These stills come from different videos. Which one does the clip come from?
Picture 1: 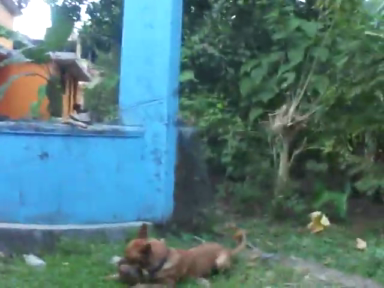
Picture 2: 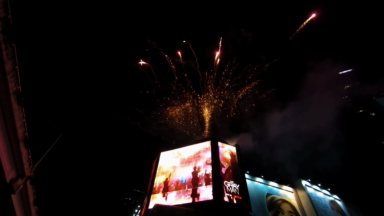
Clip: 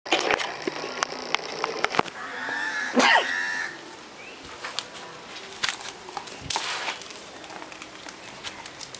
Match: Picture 1